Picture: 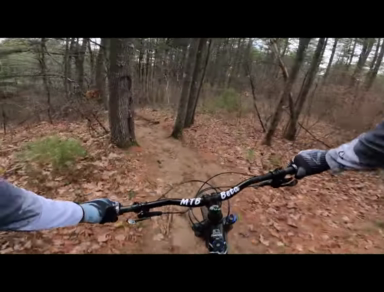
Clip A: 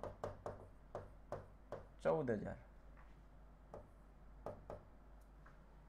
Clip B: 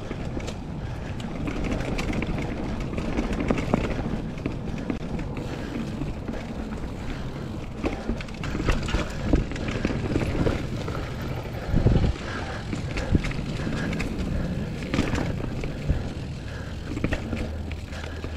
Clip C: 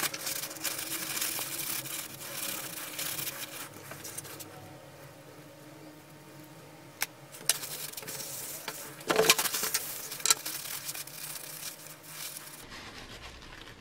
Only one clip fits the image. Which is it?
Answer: B